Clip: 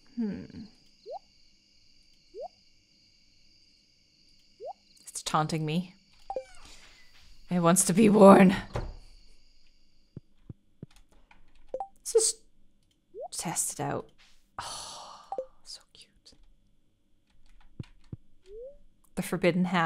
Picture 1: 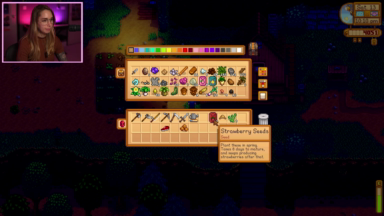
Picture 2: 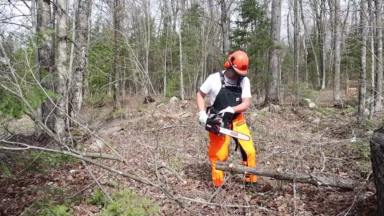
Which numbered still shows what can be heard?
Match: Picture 1